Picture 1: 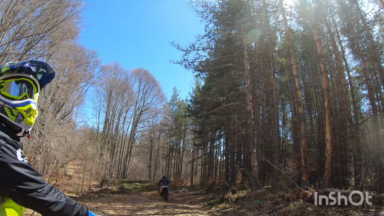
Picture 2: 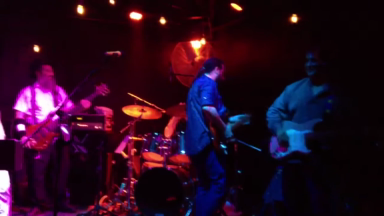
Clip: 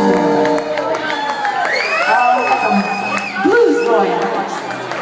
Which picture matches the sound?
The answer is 2